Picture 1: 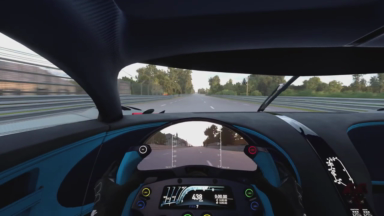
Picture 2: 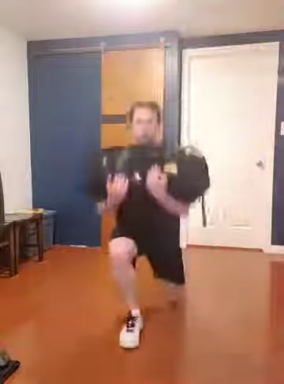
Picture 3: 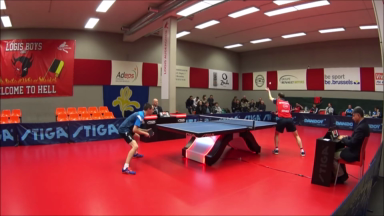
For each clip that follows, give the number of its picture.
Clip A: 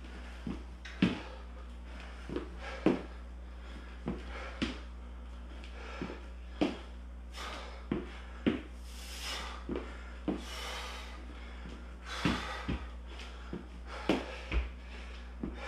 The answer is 2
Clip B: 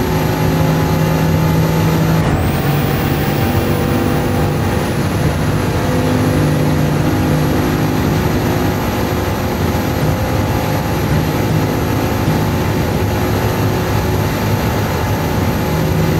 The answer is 1